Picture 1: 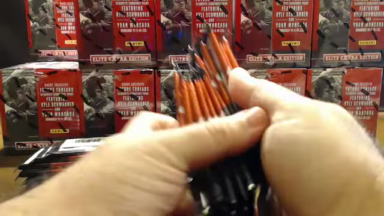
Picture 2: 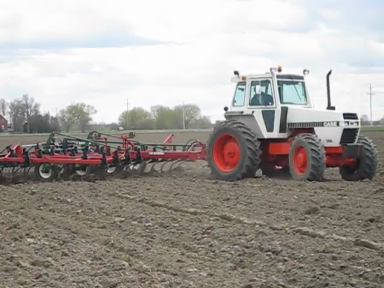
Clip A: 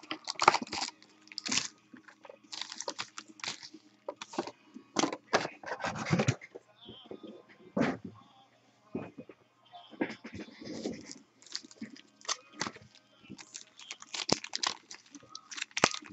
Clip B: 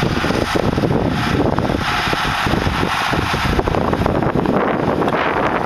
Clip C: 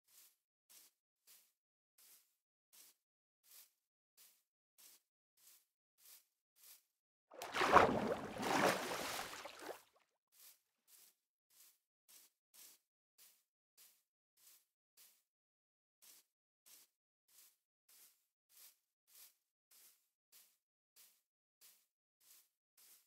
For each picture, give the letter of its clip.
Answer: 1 A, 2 B